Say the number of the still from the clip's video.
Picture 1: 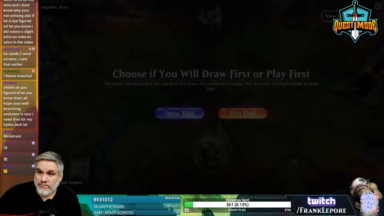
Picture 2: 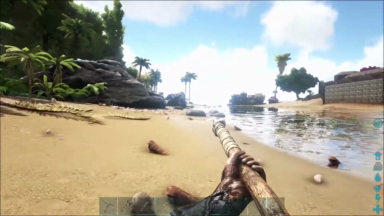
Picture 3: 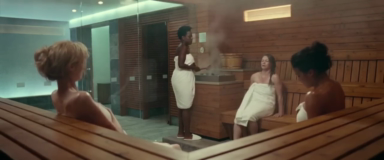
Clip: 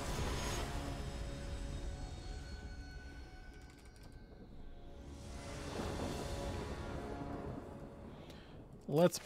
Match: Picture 1